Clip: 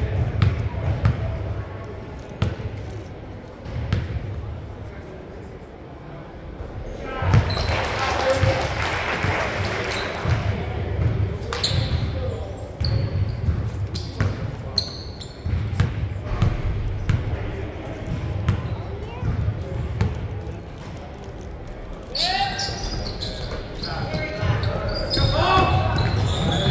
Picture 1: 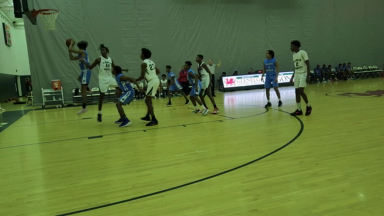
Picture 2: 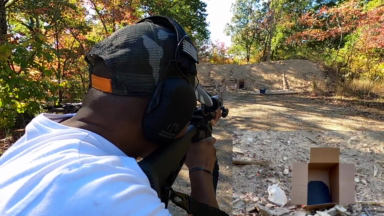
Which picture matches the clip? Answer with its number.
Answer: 1